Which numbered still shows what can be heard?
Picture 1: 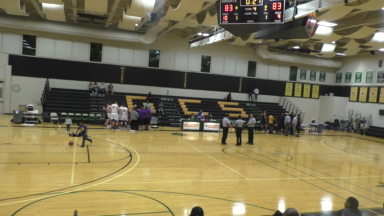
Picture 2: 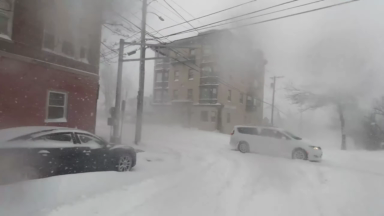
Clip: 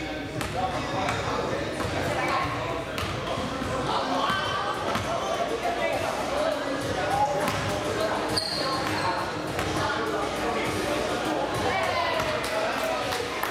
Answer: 1